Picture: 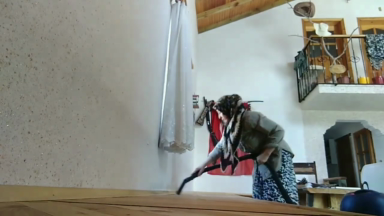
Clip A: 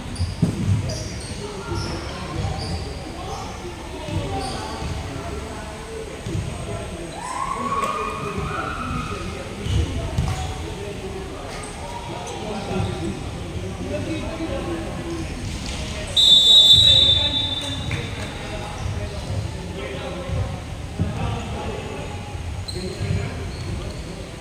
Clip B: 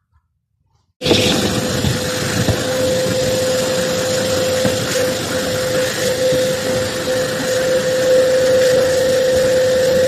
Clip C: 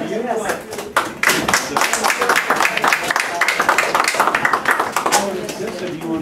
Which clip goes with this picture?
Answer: B